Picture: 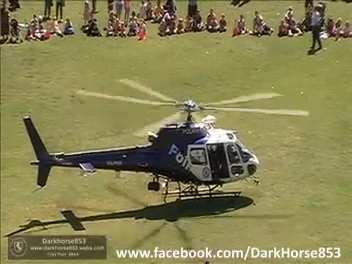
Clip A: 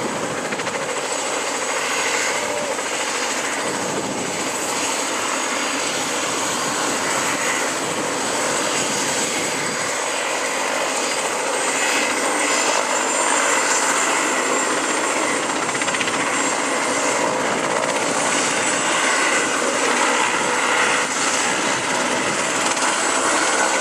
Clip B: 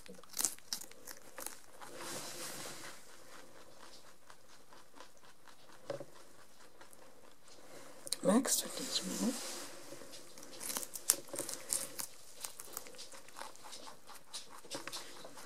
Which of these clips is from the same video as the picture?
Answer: A